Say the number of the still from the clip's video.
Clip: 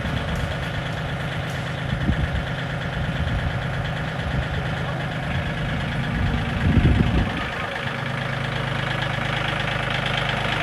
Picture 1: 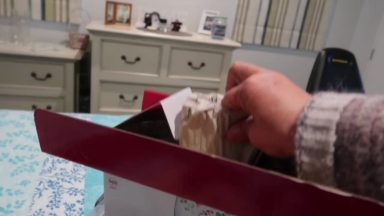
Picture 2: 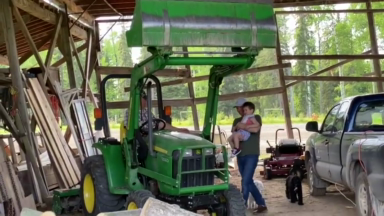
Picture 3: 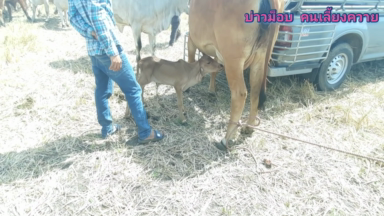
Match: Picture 2